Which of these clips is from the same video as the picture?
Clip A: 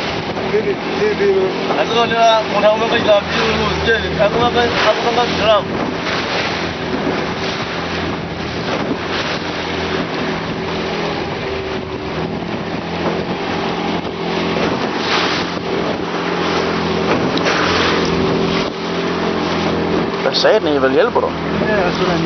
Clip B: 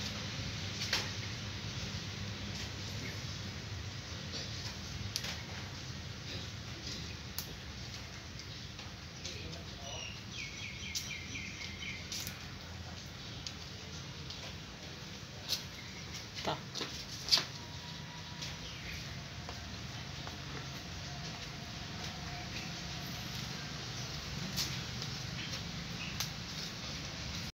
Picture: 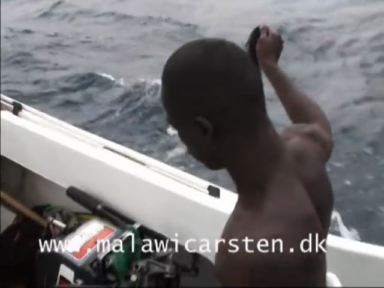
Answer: A